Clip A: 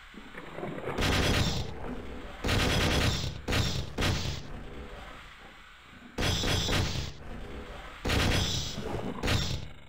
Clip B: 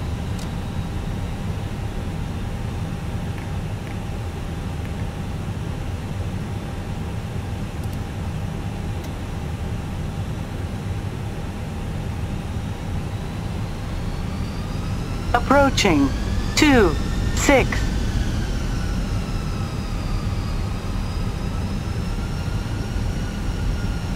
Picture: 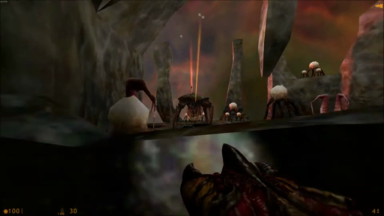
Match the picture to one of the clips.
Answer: A